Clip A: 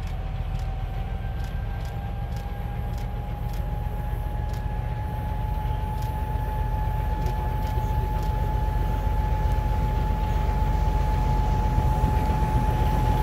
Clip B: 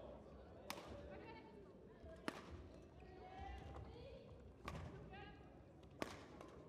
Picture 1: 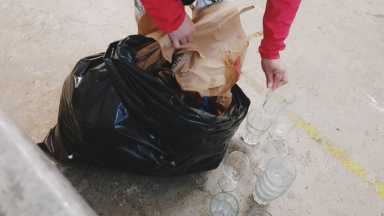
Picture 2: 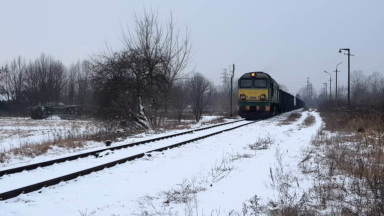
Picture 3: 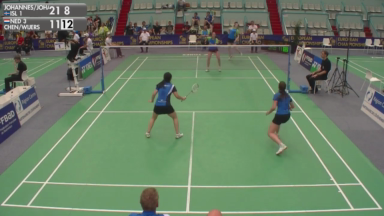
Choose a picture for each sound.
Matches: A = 2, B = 3